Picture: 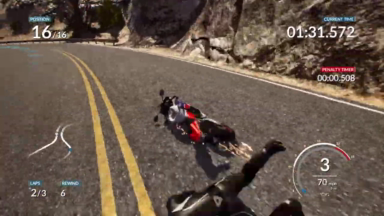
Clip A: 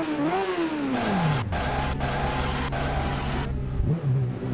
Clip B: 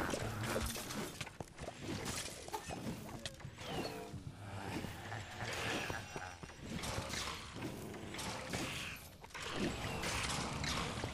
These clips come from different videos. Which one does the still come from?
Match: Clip A